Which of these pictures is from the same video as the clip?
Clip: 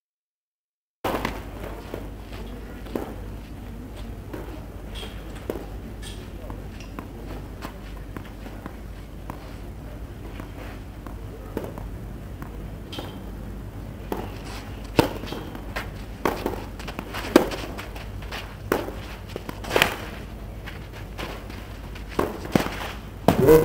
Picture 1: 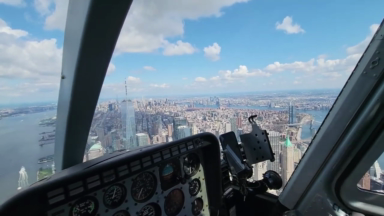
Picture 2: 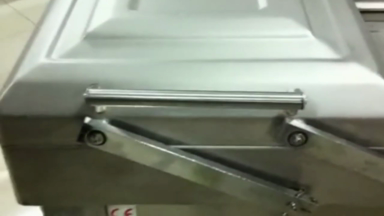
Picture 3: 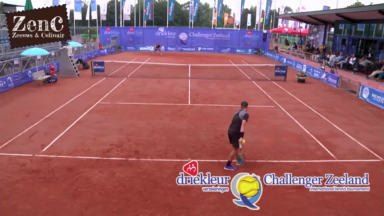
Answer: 3